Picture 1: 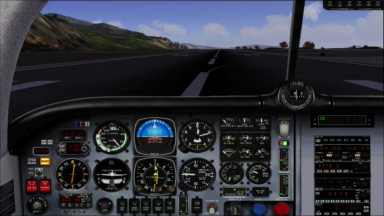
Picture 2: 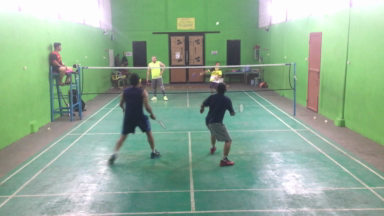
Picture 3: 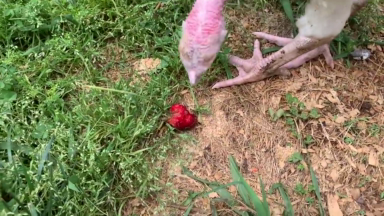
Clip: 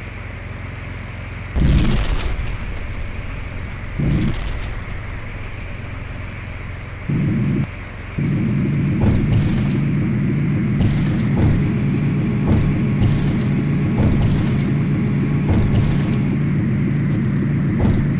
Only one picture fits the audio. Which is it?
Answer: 1